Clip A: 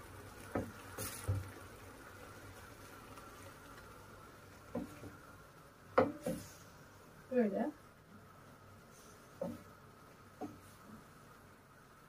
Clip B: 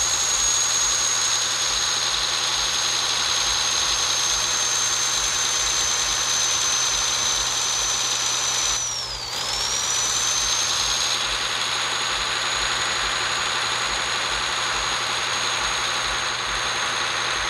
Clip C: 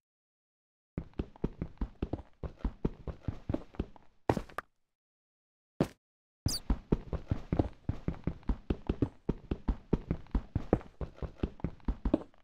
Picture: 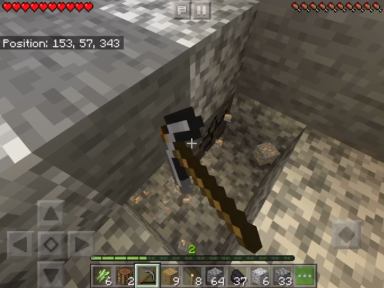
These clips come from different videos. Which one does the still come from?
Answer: C